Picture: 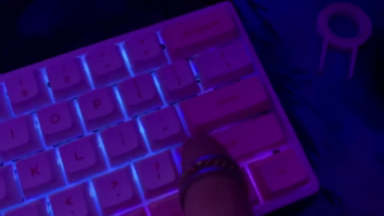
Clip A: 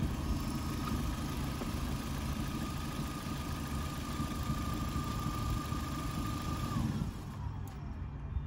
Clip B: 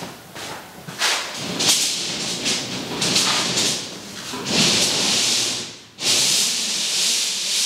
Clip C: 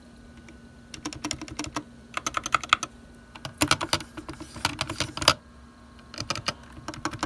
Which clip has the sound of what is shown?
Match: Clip C